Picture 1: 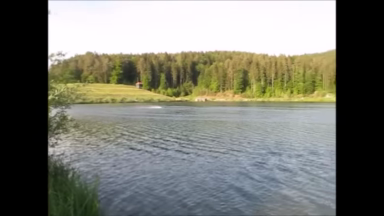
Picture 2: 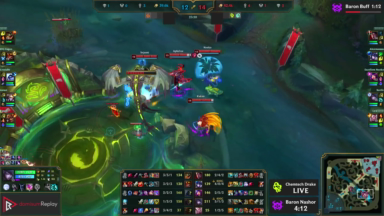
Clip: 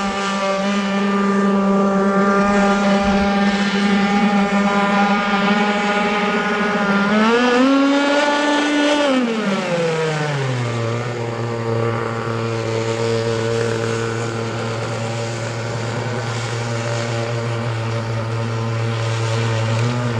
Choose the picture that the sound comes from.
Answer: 1